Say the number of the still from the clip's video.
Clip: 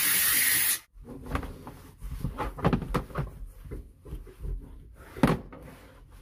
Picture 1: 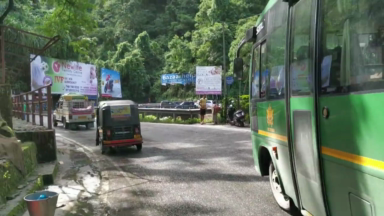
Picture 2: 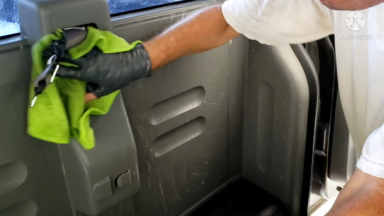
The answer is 2